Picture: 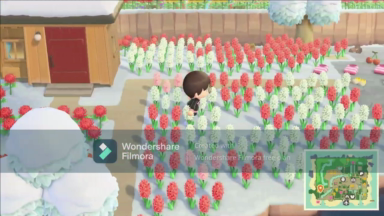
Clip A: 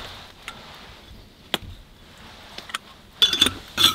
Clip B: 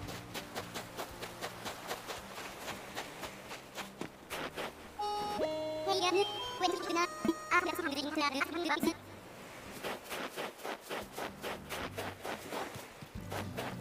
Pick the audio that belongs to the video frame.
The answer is B